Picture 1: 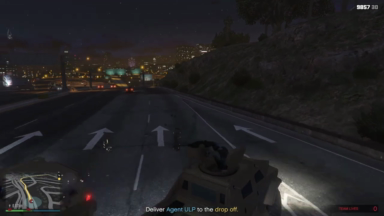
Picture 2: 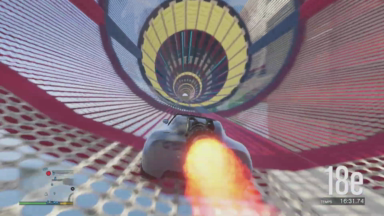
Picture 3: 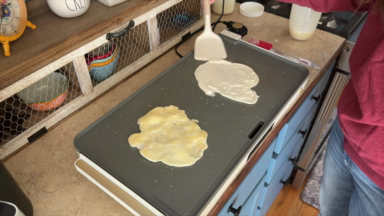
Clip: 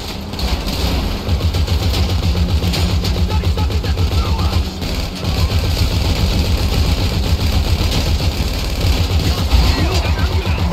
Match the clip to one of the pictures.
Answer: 1